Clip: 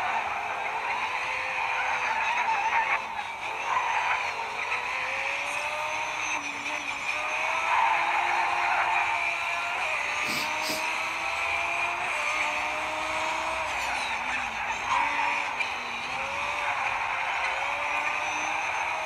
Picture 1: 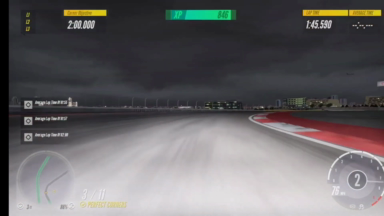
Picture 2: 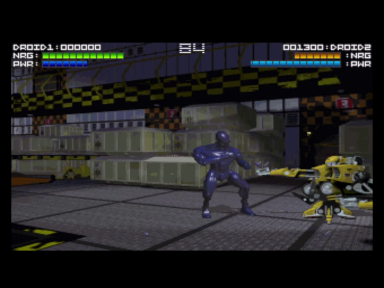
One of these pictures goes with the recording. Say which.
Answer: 1